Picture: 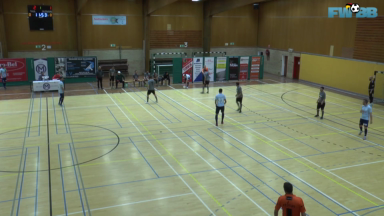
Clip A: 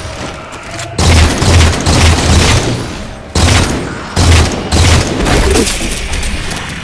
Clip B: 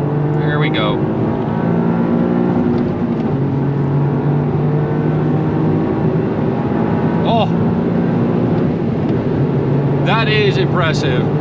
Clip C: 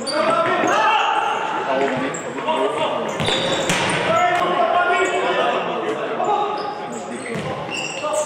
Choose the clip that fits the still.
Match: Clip C